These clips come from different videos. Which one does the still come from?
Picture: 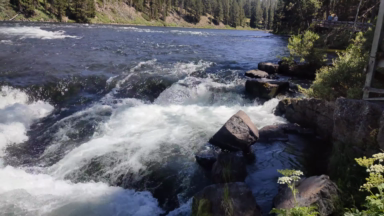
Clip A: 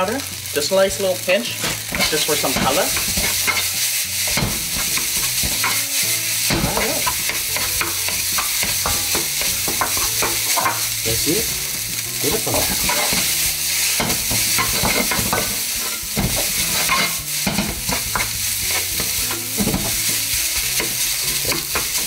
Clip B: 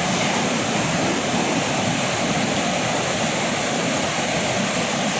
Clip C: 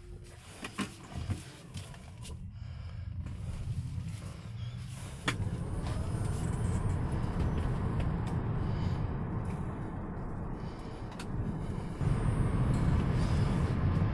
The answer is B